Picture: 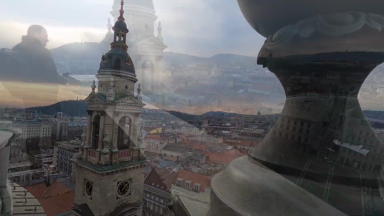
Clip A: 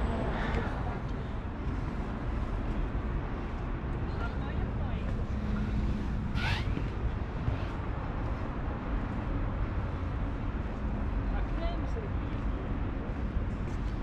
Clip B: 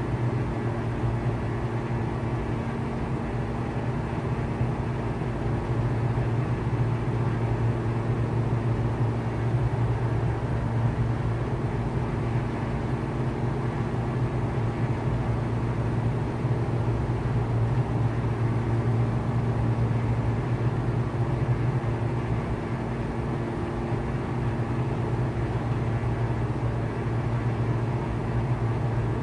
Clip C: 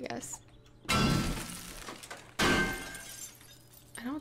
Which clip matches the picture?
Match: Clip A